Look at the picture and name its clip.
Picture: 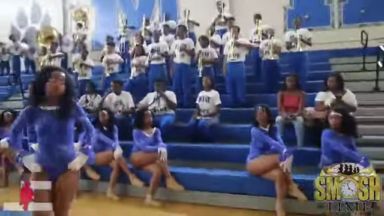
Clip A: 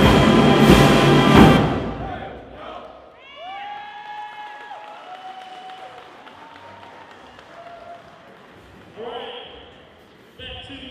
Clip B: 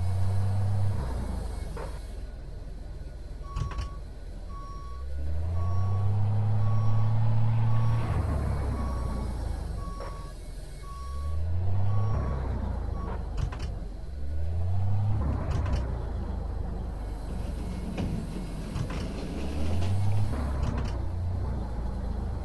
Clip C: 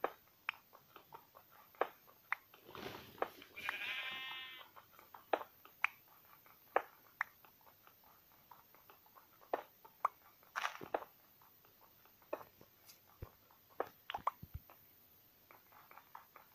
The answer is A